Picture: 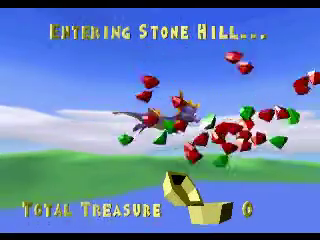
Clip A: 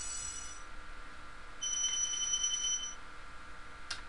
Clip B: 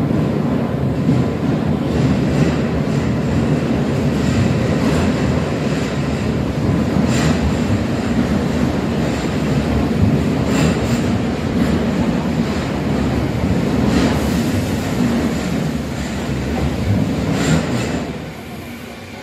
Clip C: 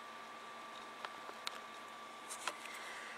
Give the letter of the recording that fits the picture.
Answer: A